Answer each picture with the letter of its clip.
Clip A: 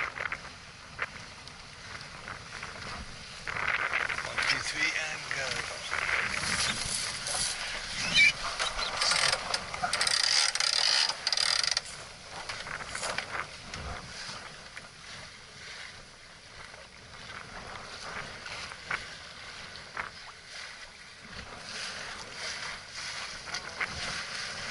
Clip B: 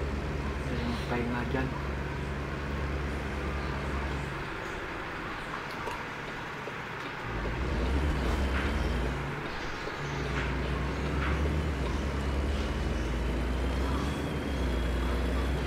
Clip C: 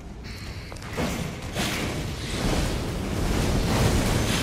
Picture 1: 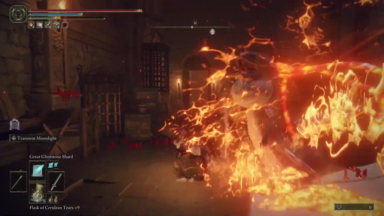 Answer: C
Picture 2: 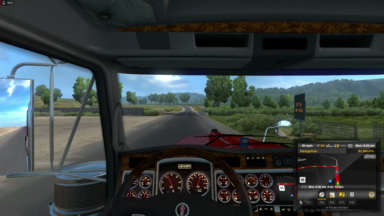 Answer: B